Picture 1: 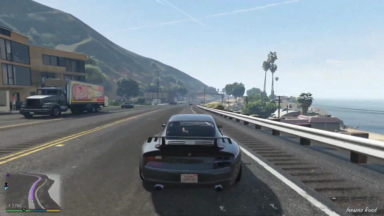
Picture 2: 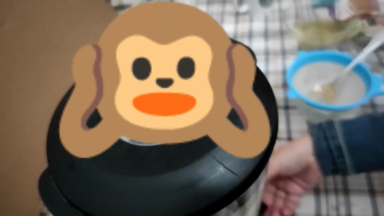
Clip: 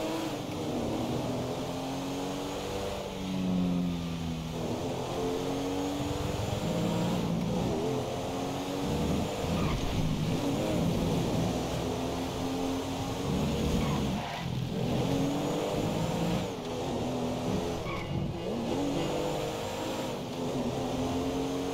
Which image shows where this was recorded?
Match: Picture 1